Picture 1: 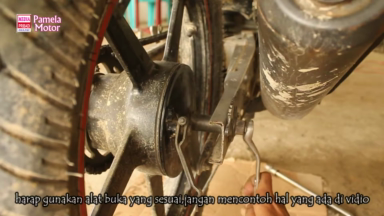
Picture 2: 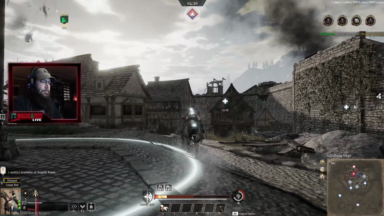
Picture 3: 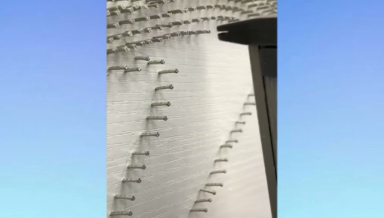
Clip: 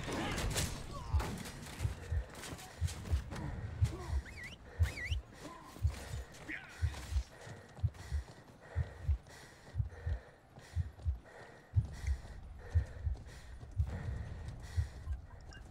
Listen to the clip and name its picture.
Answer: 2